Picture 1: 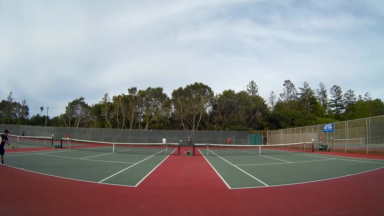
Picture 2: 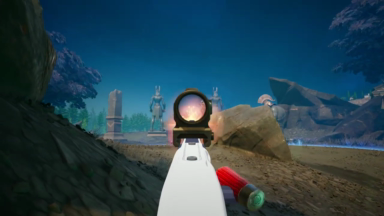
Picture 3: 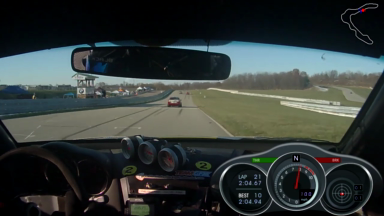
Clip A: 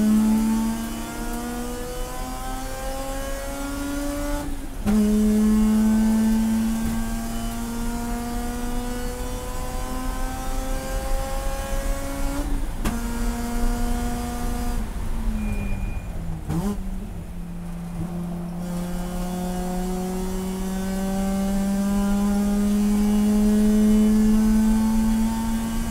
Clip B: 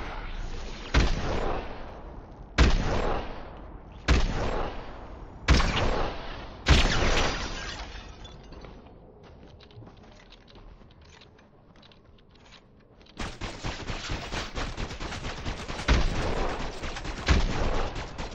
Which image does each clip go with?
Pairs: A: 3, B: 2